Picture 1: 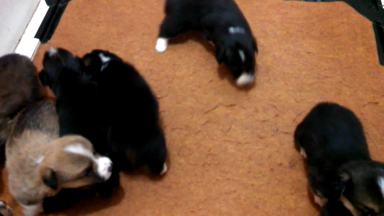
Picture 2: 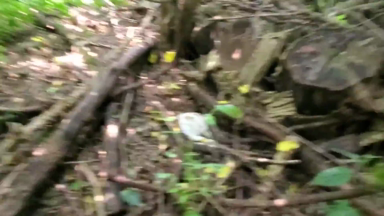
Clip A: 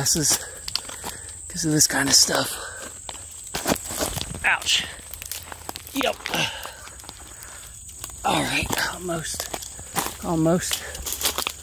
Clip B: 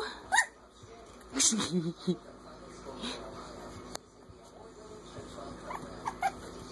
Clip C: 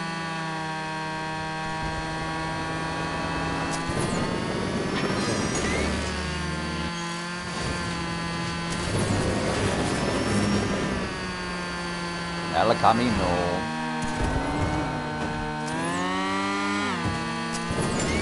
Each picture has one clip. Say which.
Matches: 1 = B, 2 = A